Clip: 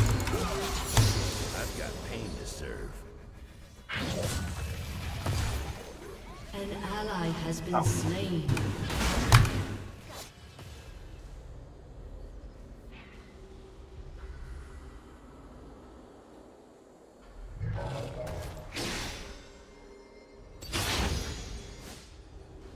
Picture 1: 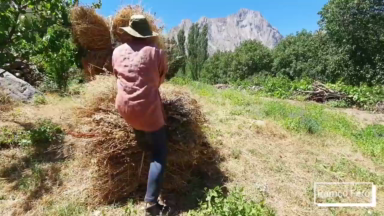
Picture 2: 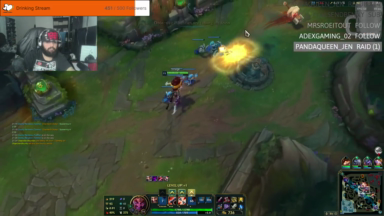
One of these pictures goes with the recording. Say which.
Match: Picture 2